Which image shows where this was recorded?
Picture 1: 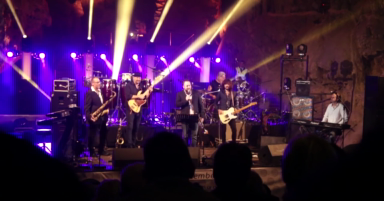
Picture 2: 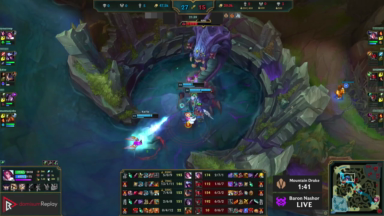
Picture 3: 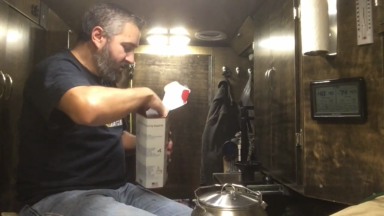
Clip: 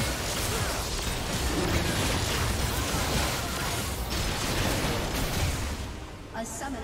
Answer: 2